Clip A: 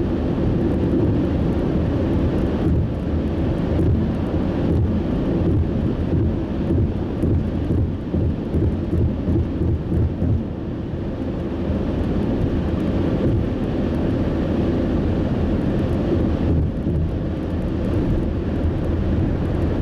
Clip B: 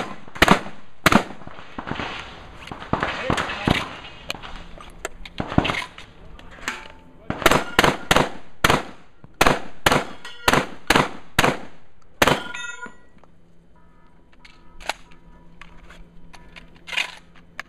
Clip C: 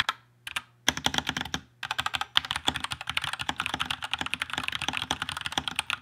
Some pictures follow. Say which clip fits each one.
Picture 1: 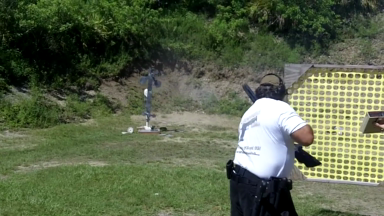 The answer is B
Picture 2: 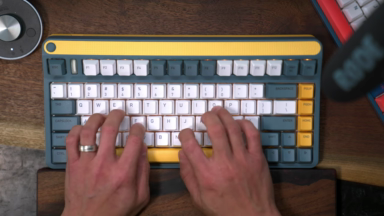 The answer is C